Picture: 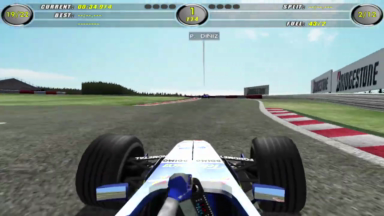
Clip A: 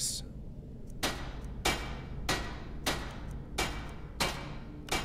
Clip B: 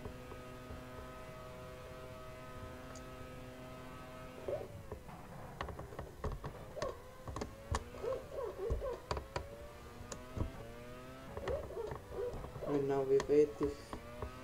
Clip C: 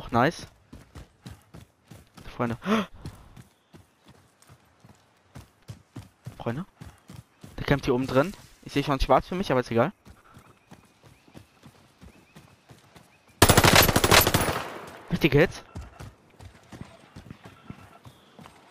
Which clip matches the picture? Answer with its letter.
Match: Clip B